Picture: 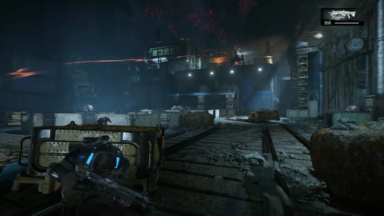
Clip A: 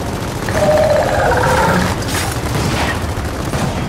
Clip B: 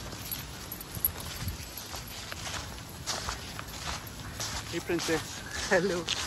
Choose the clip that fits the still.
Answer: A